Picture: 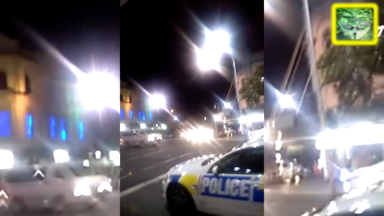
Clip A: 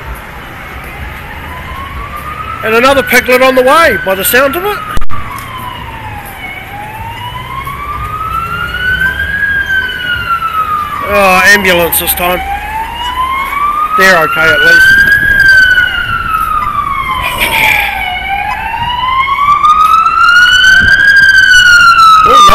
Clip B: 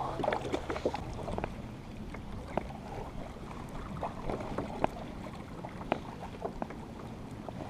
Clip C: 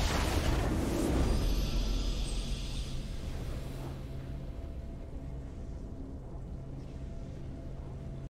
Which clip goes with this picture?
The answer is A